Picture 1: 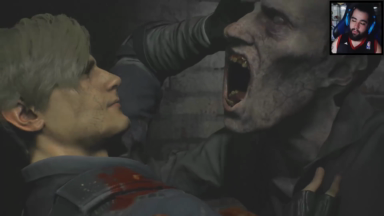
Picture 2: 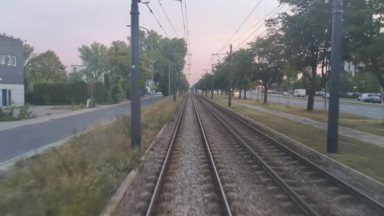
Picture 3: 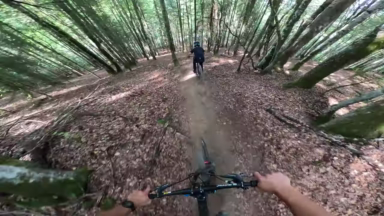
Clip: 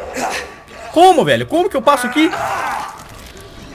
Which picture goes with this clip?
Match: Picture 1